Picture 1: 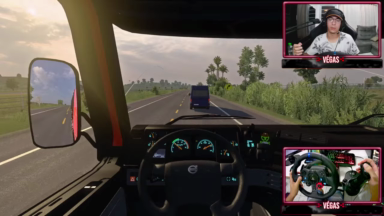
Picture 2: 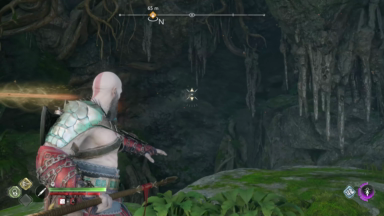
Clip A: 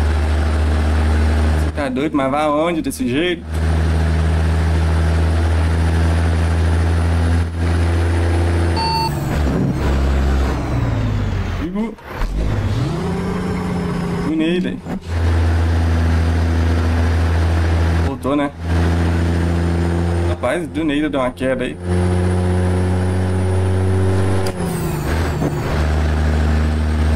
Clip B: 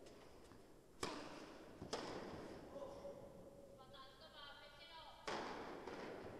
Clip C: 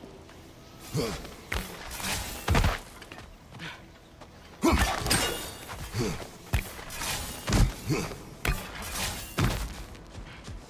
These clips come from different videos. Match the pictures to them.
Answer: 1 A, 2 C